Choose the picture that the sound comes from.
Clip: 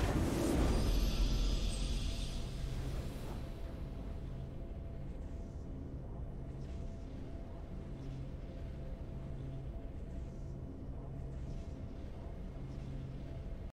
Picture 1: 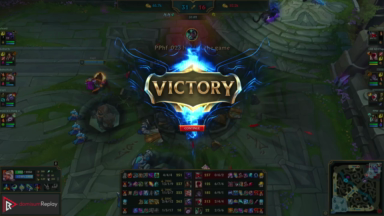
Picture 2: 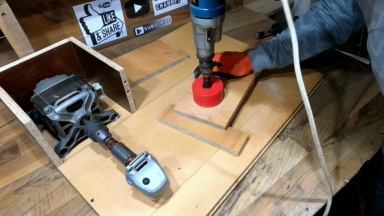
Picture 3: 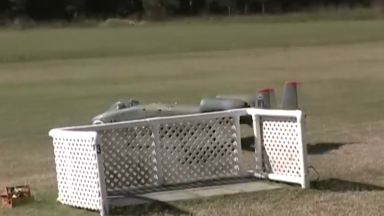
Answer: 1